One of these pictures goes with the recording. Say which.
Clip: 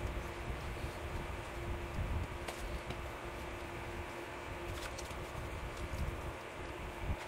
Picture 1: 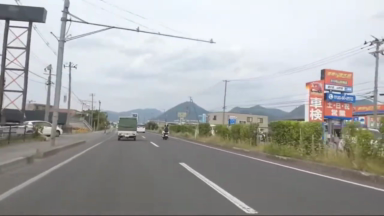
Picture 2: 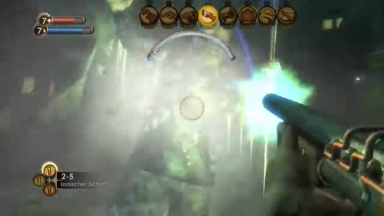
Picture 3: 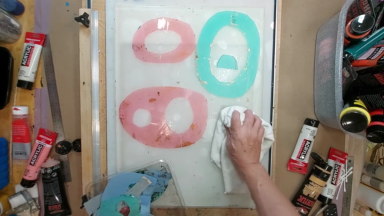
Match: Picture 3